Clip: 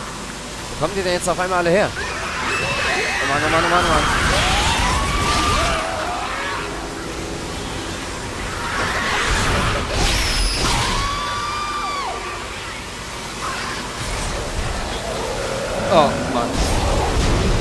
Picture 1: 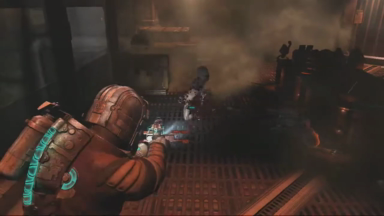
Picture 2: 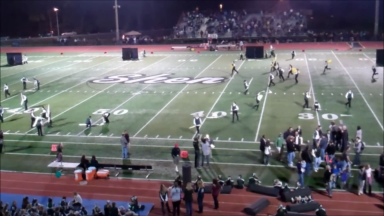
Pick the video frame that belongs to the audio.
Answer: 1